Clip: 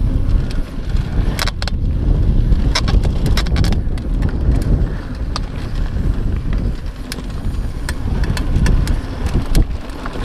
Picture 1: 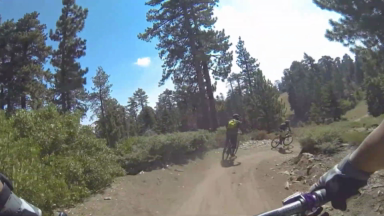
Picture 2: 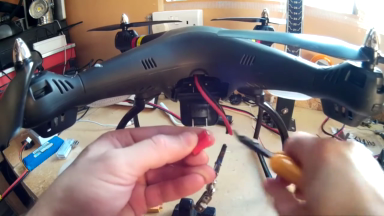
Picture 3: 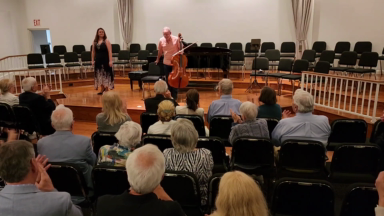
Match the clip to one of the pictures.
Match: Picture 1